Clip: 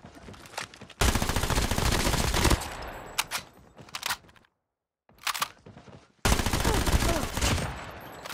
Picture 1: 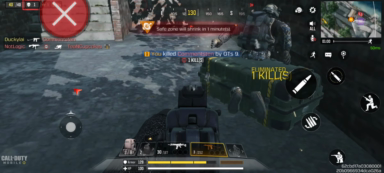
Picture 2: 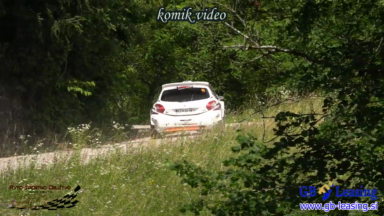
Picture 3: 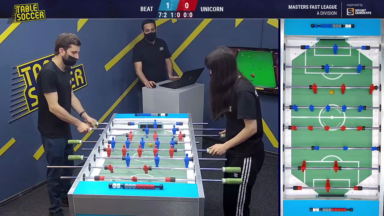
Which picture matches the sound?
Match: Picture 1